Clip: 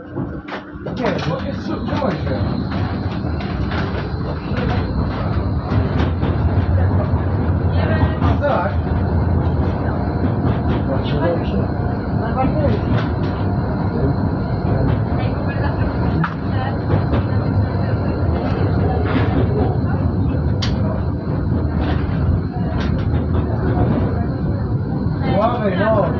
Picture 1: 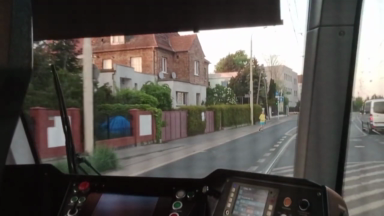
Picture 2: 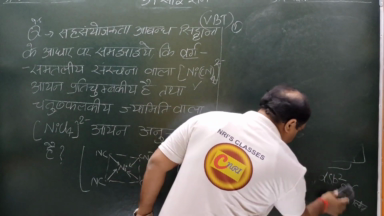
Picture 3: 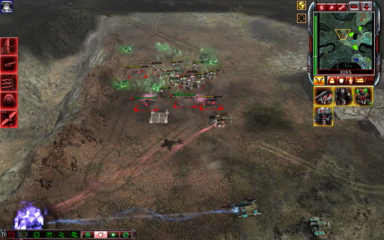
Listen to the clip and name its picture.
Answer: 1